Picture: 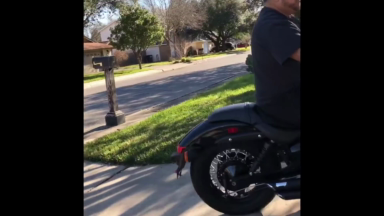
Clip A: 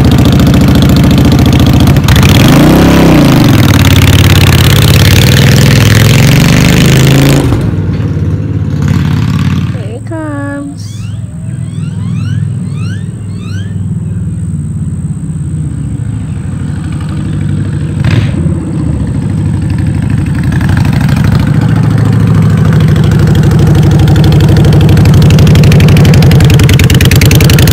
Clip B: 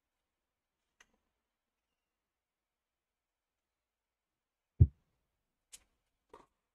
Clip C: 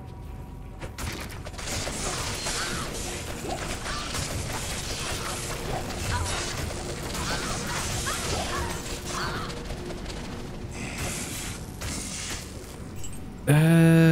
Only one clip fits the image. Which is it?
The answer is A